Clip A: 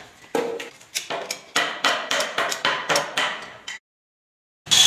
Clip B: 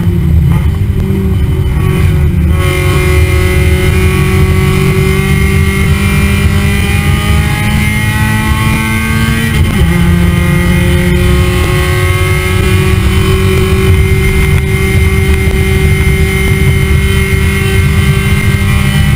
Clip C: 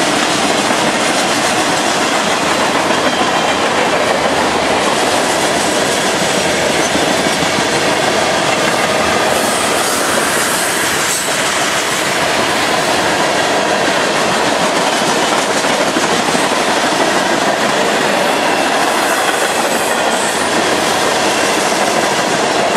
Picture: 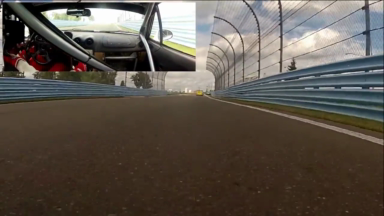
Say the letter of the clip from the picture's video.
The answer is B